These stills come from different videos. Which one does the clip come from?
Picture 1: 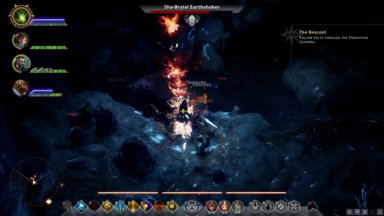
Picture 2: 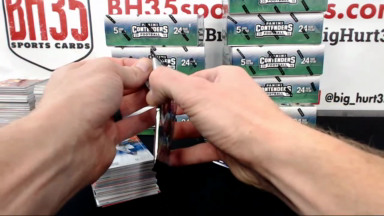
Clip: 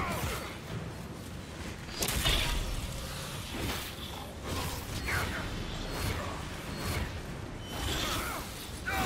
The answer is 1